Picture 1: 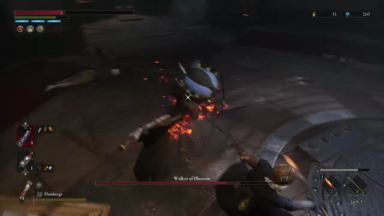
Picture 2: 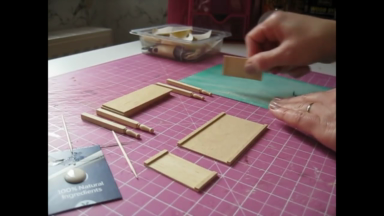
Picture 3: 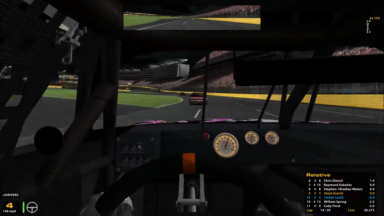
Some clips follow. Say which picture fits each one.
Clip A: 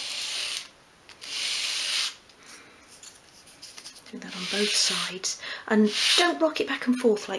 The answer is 2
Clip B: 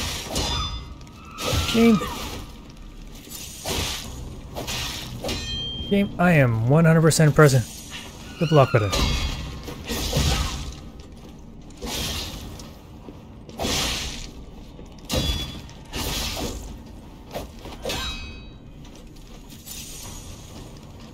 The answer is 1